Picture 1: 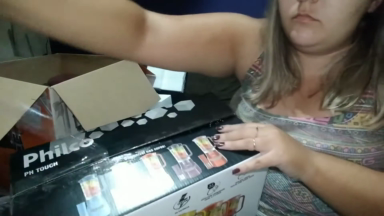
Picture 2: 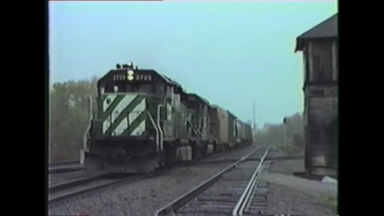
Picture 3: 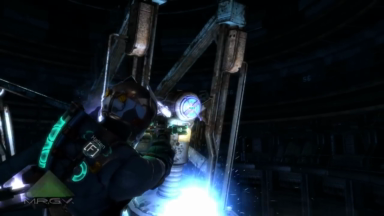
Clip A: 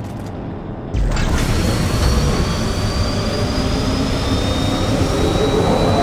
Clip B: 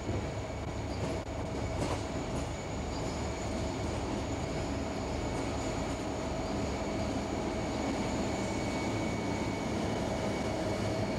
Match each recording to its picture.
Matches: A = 3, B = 2